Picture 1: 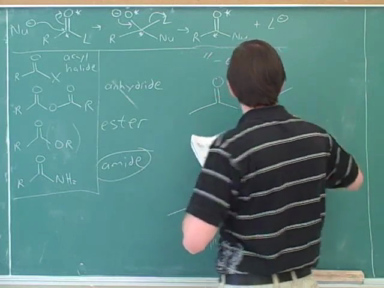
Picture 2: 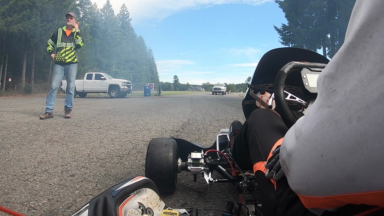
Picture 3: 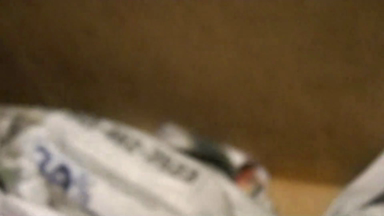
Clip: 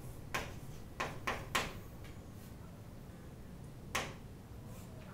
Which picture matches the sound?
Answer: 1